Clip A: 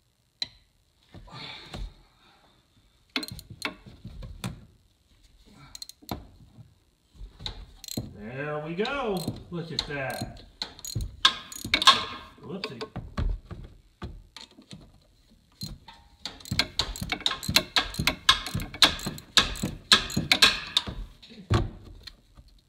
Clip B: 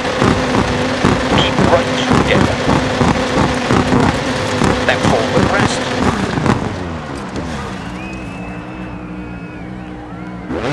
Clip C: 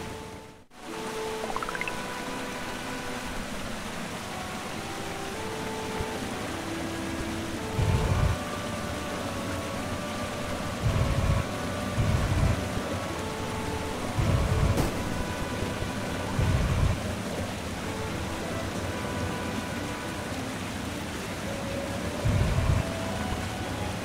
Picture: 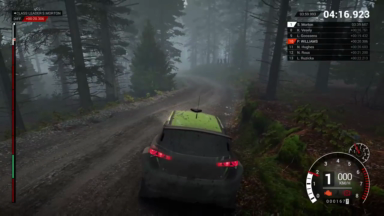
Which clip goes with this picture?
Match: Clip B